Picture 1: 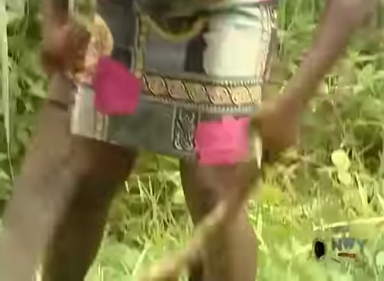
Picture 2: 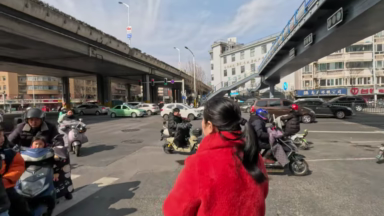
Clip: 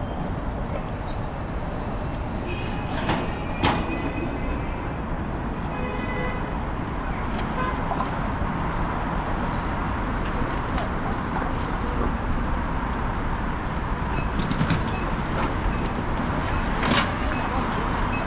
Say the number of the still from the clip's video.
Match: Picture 2